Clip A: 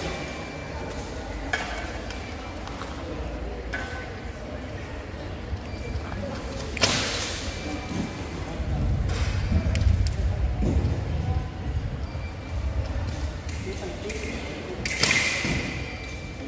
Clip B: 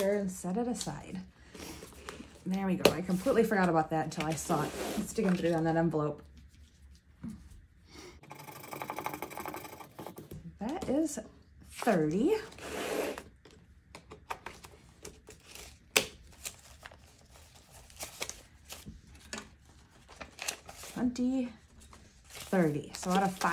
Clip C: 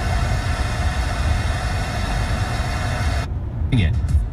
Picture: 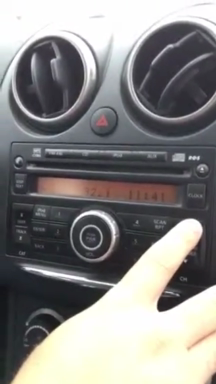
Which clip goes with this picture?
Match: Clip C